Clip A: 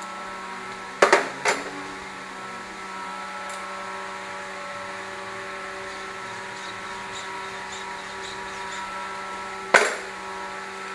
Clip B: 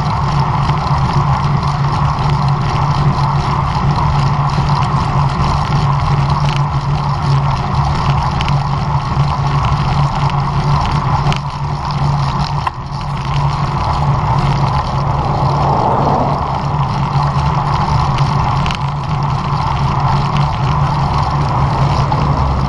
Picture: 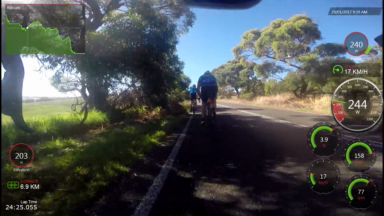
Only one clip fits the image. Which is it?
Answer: B